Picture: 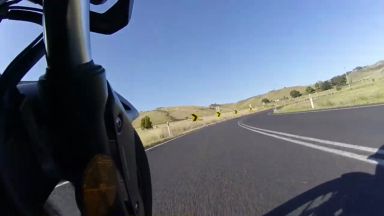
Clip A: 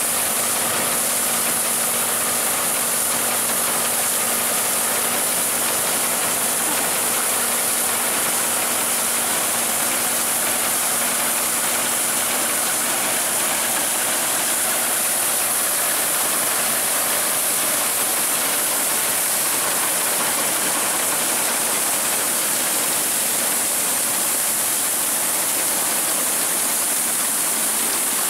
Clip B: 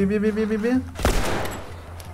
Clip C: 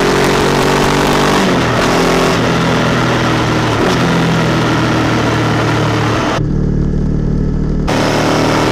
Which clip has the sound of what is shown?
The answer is C